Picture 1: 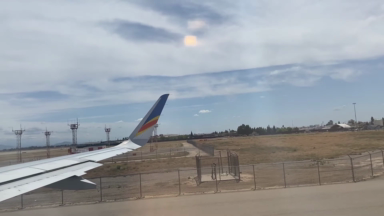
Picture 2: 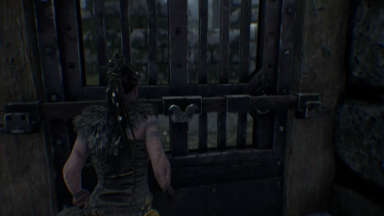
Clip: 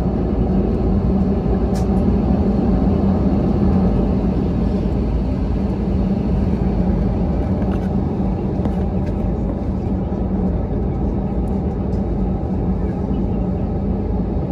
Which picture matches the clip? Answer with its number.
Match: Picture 1